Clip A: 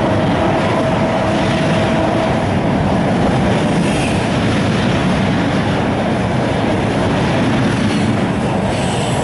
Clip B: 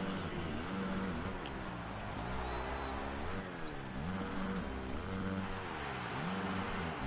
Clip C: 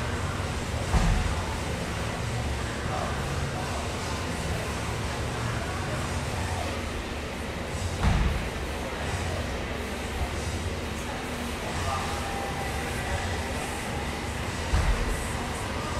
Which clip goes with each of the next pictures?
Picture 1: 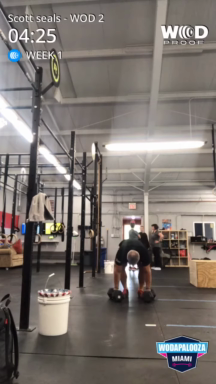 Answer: C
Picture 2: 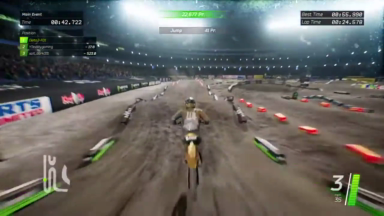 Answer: B